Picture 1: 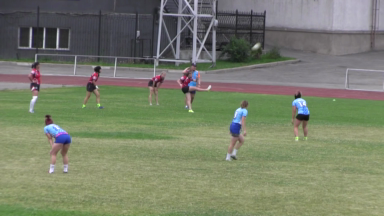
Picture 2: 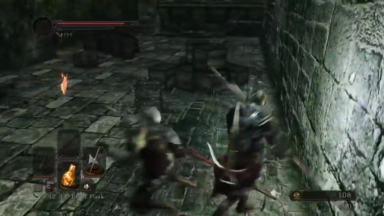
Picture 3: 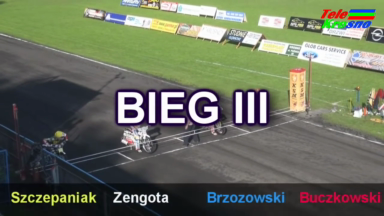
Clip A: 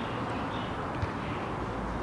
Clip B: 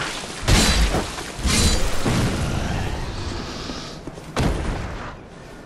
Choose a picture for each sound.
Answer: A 1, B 2